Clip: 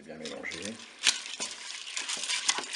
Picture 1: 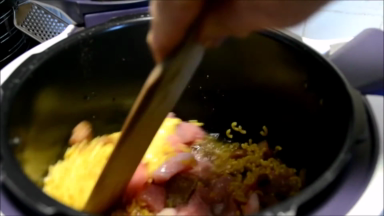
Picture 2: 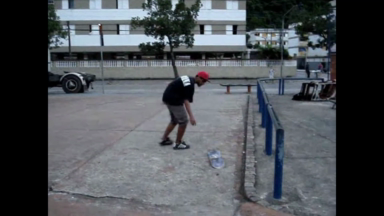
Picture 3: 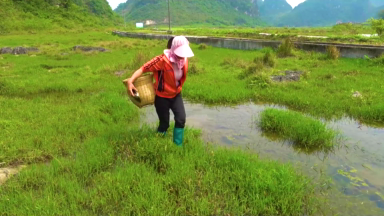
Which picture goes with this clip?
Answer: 1